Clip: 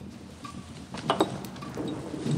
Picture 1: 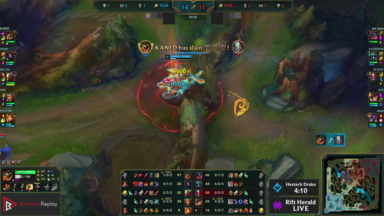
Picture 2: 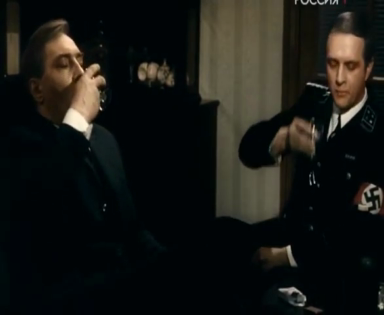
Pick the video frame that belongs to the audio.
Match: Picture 2